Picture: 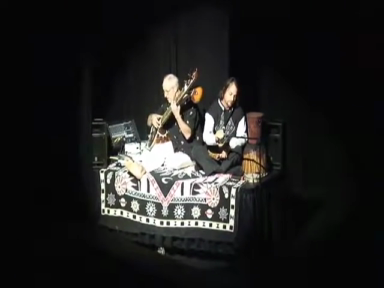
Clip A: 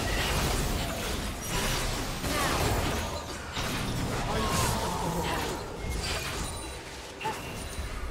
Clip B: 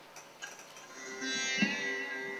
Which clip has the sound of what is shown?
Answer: B